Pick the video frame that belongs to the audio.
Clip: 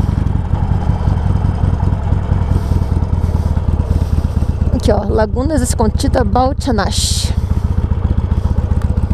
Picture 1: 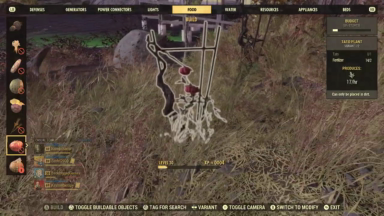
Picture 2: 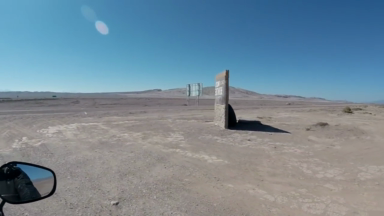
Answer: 2